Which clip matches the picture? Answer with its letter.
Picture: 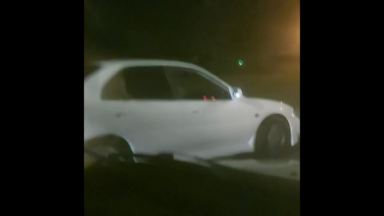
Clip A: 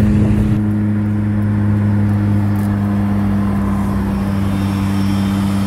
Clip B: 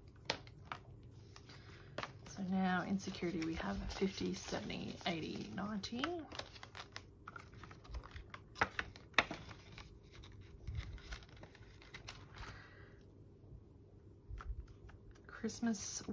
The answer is A